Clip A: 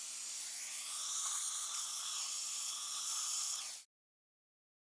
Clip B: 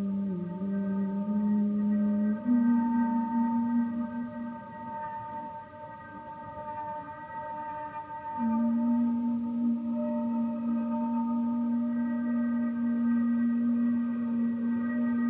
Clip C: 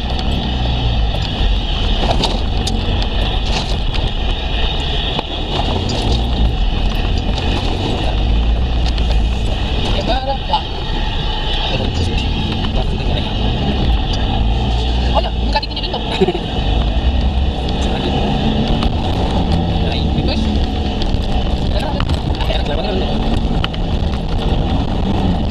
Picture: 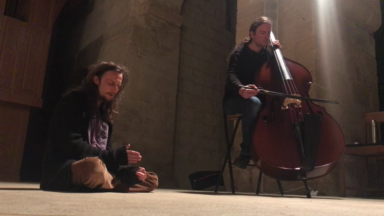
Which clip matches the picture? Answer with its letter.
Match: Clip B